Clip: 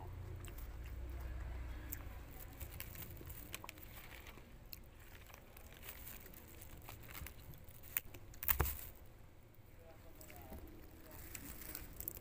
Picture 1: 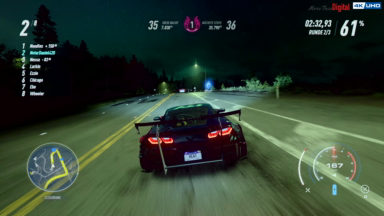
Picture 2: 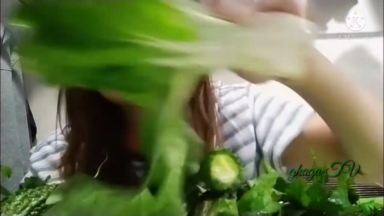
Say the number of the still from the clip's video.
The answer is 2